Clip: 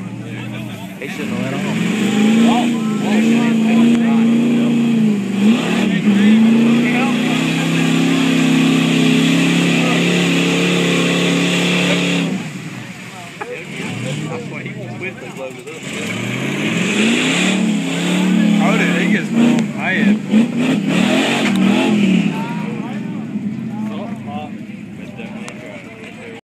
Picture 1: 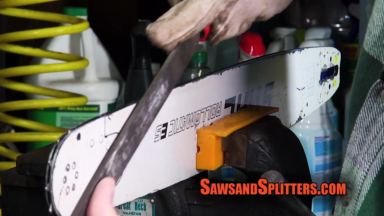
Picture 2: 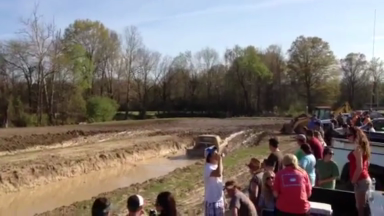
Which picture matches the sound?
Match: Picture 2